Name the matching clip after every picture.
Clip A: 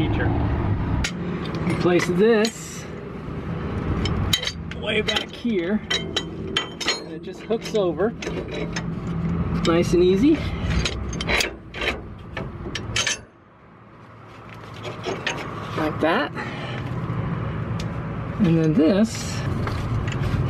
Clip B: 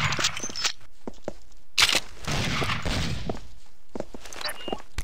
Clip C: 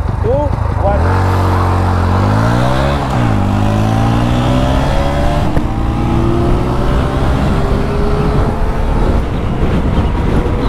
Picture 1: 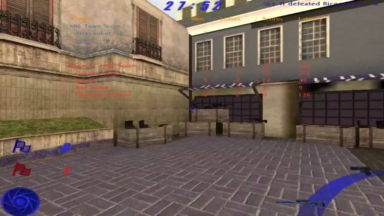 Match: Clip B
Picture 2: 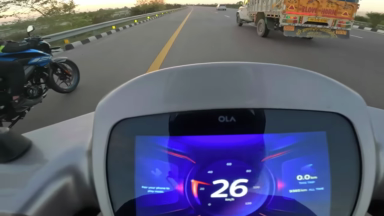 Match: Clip C